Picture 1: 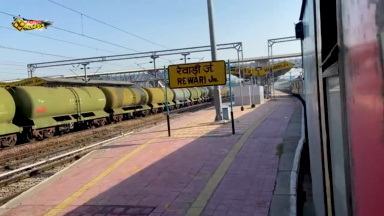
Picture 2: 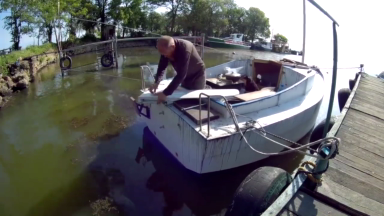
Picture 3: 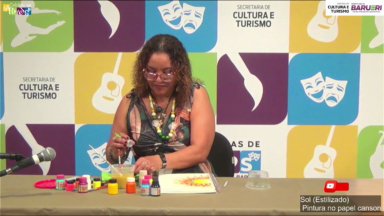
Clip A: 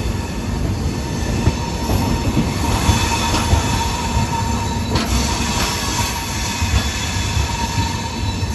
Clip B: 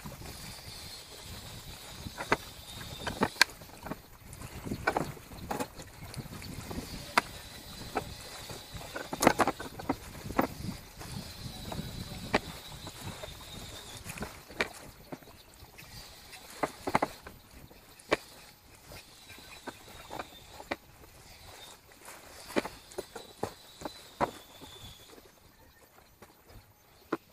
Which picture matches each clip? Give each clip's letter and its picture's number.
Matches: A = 1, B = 2